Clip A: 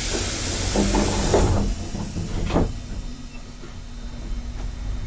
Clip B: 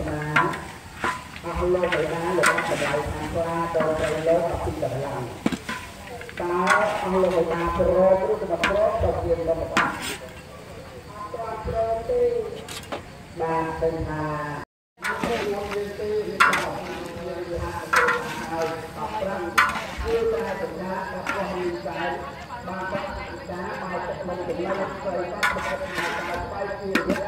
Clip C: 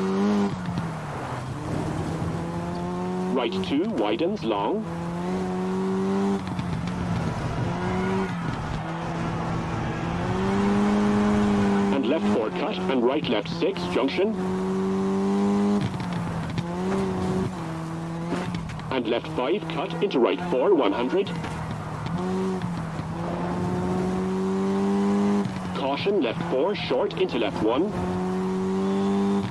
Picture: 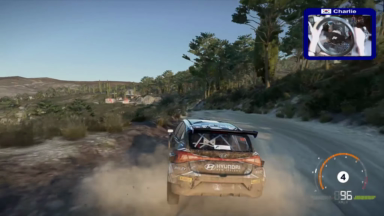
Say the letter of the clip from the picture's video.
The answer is C